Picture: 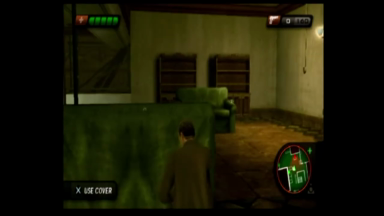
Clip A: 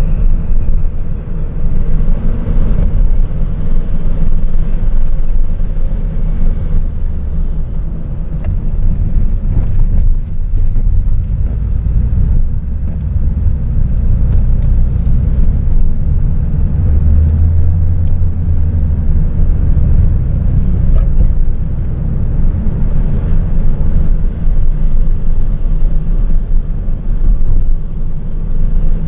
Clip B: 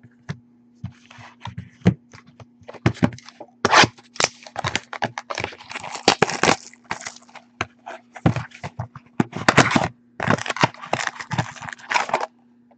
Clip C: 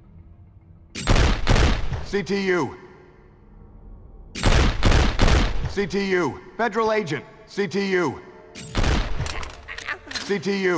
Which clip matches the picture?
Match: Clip C